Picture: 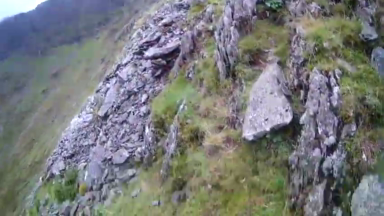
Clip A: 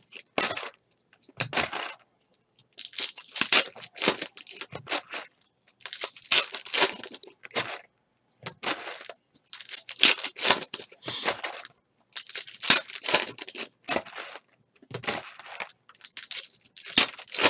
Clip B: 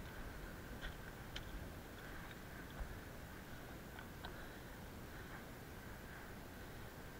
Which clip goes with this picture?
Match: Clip B